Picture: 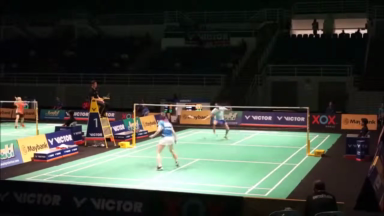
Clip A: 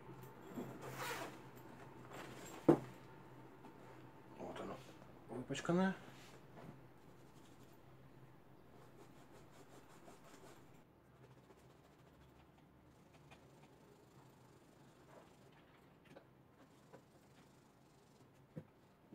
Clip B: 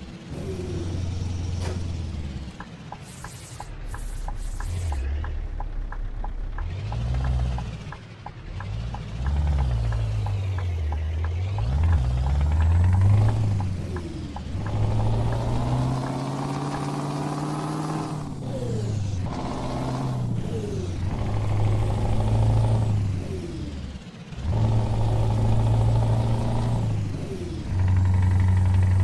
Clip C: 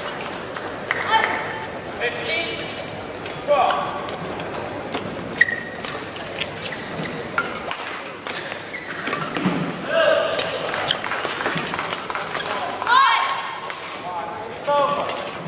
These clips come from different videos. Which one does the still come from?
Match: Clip C